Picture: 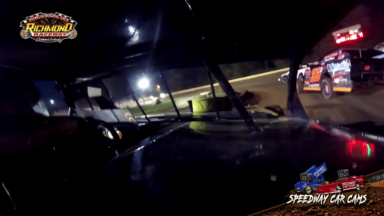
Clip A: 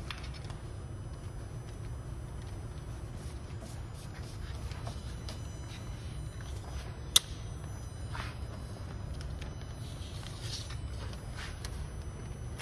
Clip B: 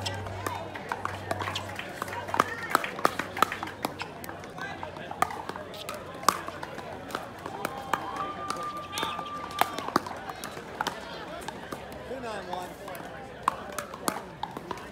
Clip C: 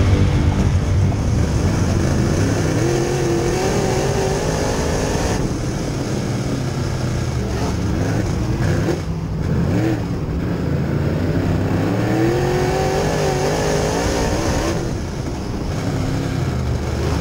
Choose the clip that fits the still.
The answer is C